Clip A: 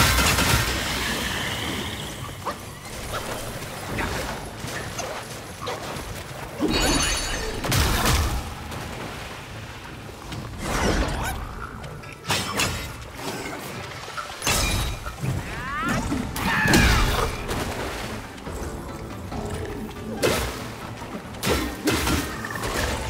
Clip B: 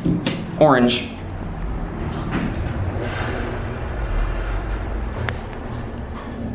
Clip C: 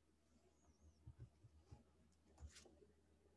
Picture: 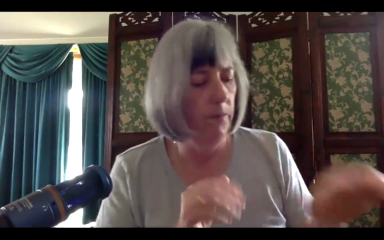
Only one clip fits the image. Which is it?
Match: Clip C